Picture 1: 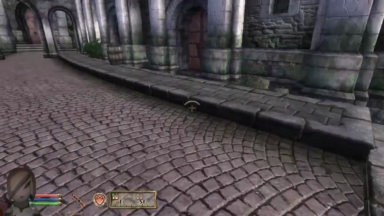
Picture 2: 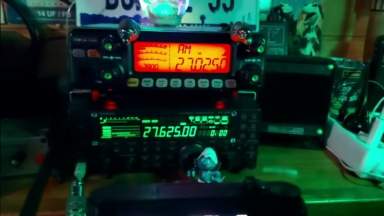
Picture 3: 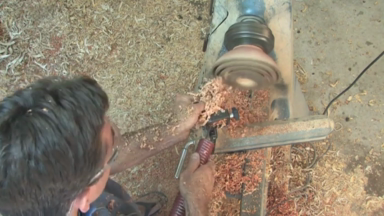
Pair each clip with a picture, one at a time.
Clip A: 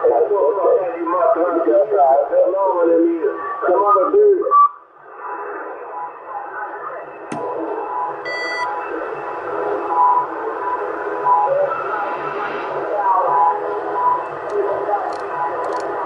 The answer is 2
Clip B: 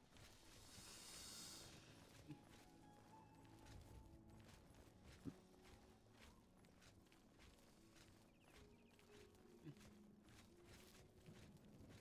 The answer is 1